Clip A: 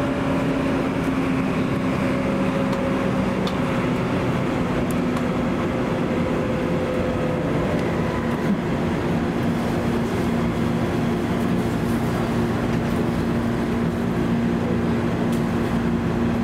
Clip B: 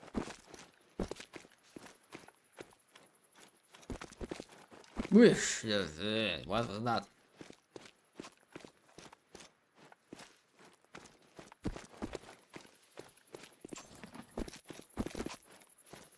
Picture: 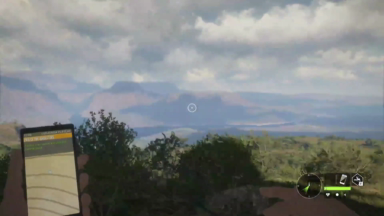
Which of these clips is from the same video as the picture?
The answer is B